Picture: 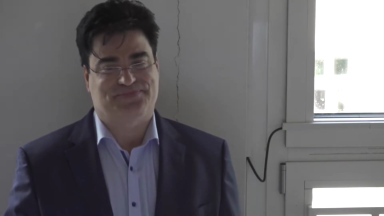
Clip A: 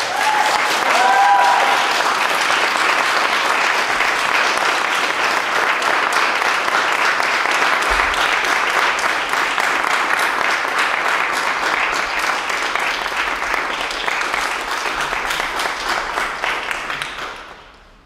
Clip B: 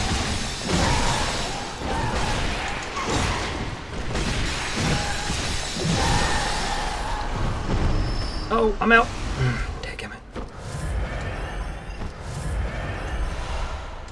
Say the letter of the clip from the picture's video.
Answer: A